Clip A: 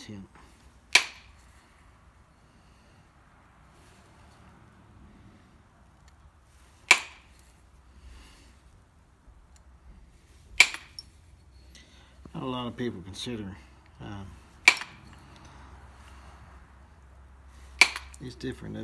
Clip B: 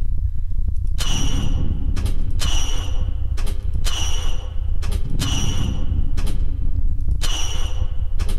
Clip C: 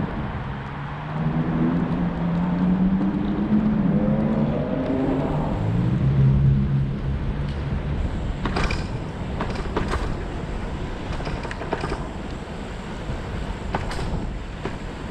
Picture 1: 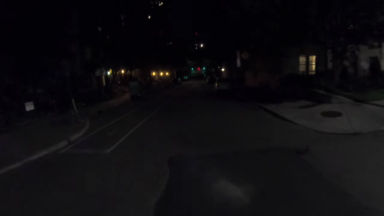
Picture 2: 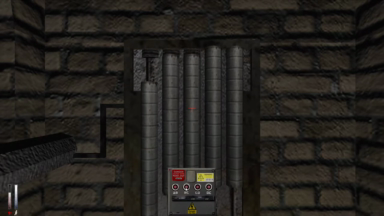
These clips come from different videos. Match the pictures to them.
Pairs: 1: C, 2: B